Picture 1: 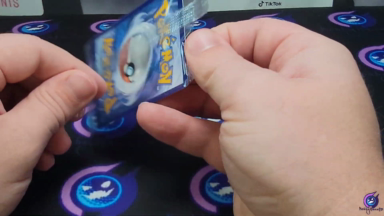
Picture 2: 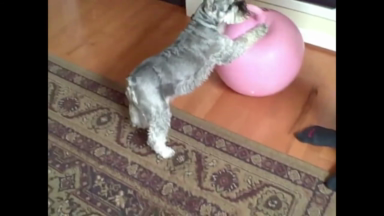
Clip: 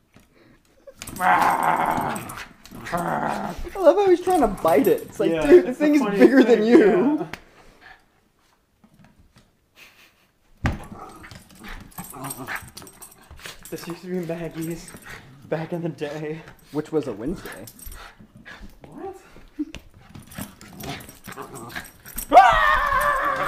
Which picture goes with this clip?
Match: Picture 2